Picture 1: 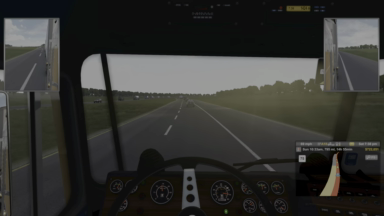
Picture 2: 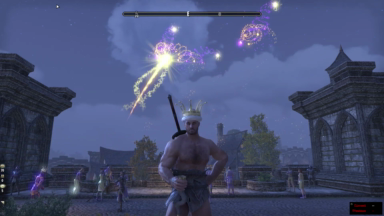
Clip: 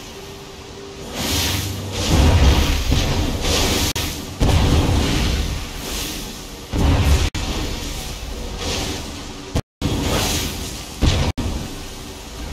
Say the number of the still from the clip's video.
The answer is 2